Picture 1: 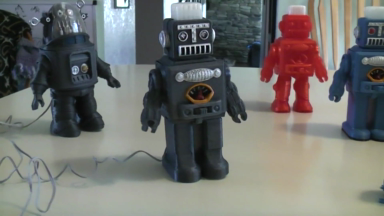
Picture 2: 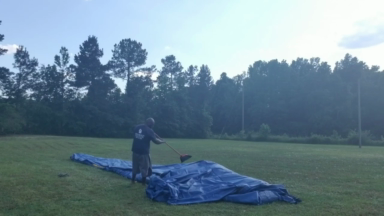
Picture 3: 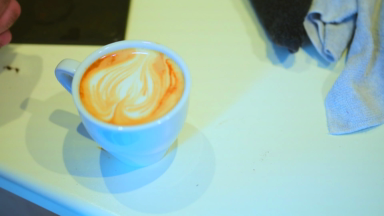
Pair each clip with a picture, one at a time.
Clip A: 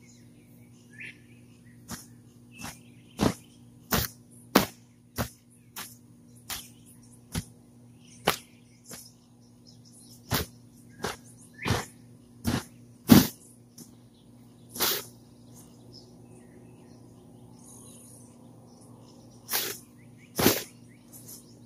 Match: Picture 2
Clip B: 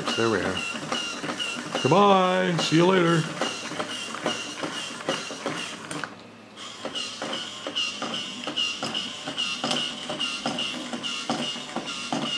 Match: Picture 1